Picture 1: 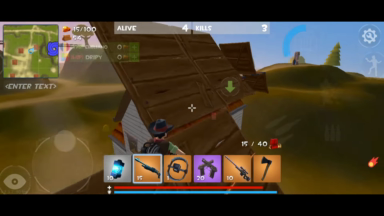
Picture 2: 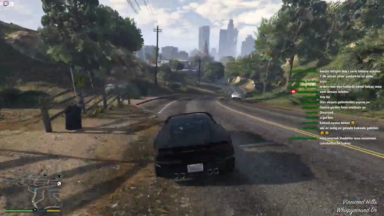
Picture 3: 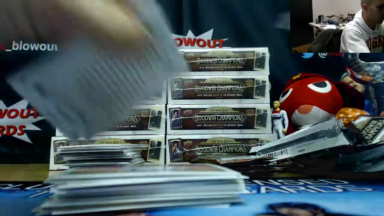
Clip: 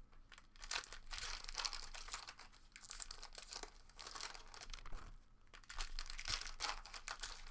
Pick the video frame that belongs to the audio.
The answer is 3